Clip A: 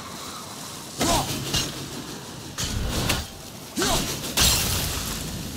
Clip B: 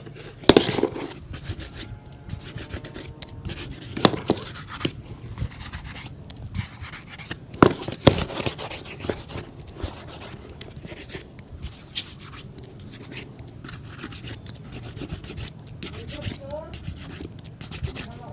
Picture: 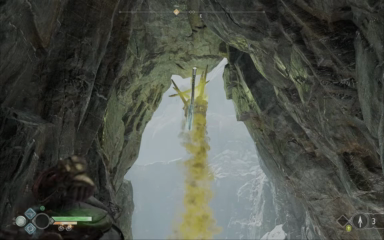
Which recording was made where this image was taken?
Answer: A